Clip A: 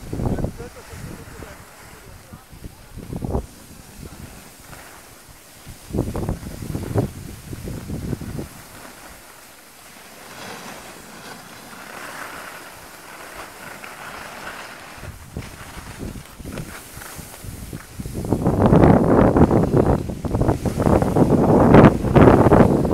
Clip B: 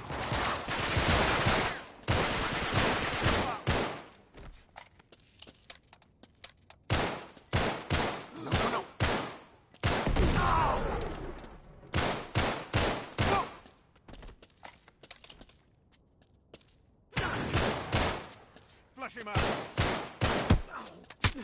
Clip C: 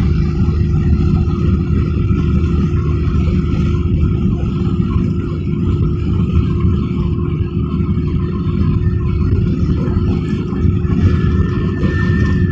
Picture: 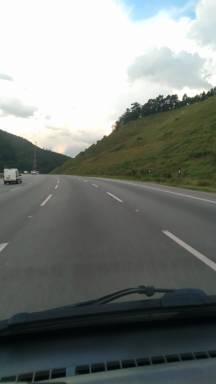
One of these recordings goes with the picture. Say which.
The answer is C